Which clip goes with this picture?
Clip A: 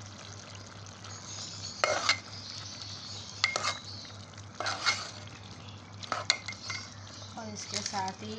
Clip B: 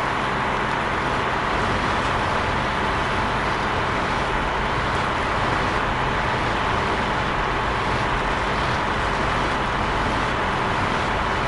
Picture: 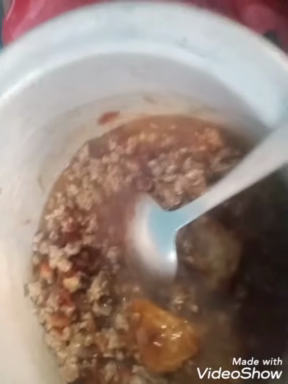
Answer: A